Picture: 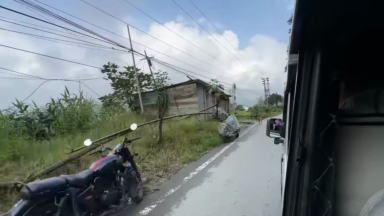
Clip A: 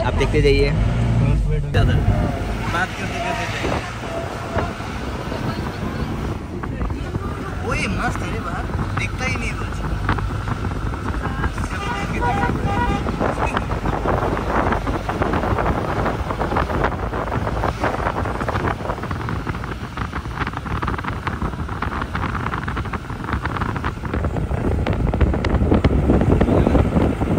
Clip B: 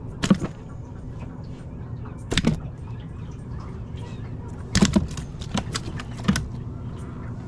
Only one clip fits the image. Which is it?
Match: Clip A